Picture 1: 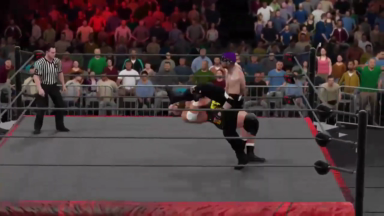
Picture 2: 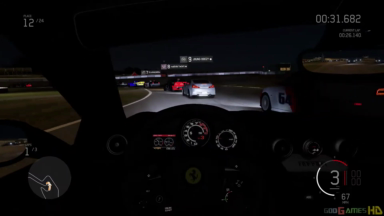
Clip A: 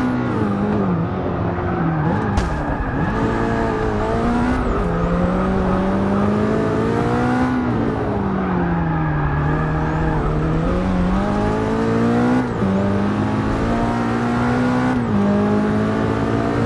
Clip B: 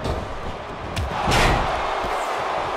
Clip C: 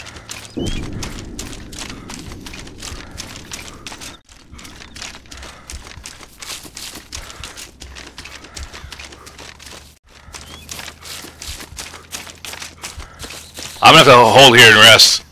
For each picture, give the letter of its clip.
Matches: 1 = B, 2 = A